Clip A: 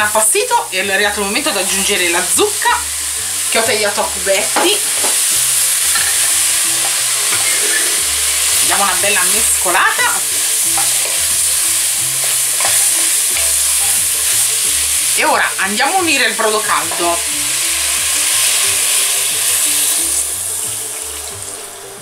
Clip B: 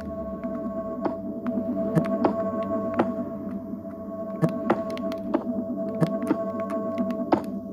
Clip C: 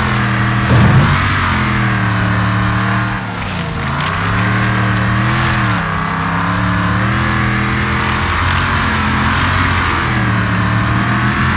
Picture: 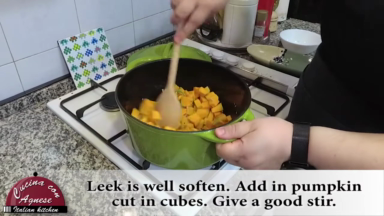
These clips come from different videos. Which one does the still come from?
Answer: A